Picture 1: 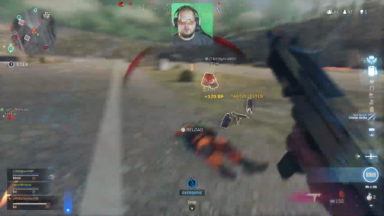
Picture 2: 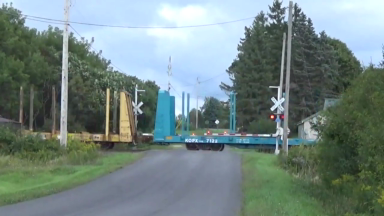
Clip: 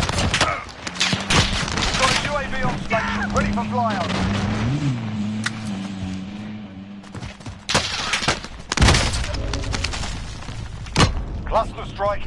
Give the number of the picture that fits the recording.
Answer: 1